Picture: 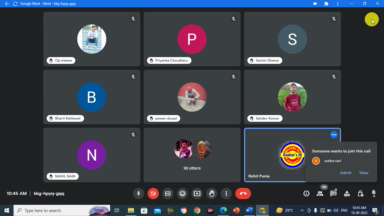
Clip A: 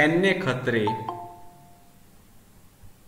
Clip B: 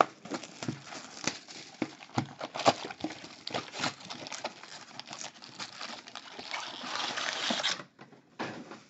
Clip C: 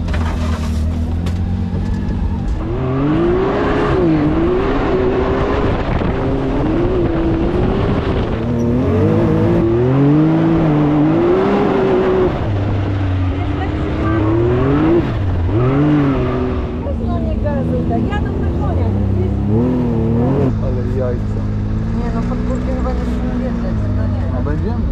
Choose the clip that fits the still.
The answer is A